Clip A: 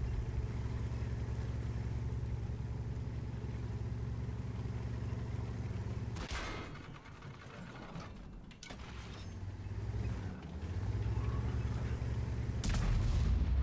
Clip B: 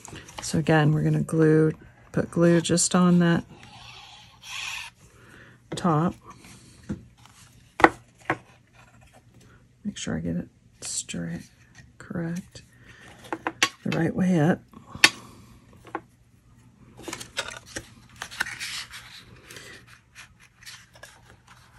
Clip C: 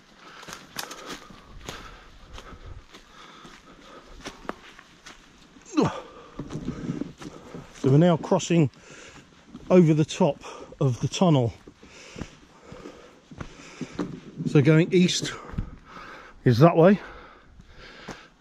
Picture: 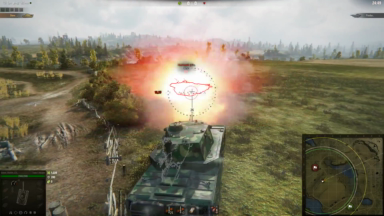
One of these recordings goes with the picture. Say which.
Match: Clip A